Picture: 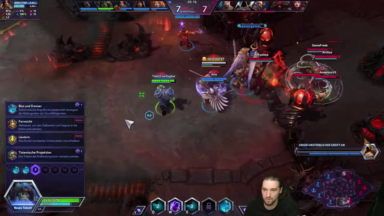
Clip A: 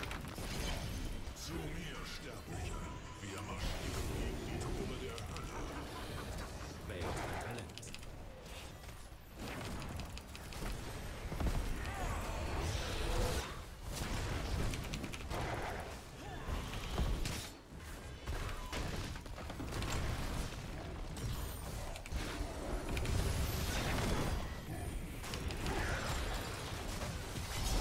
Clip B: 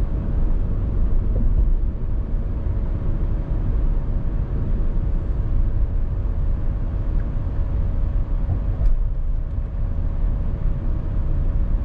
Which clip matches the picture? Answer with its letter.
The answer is A